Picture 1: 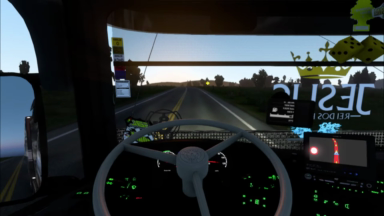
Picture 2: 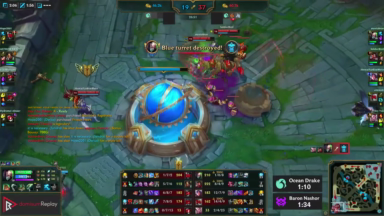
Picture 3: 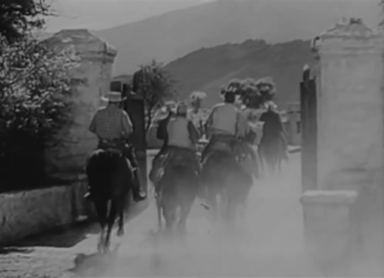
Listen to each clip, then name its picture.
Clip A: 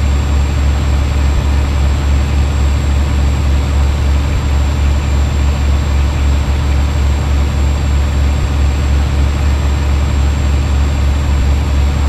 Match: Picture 1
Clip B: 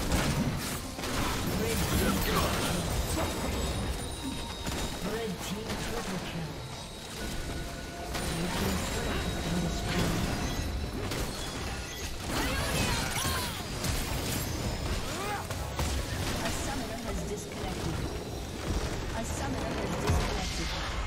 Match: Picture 2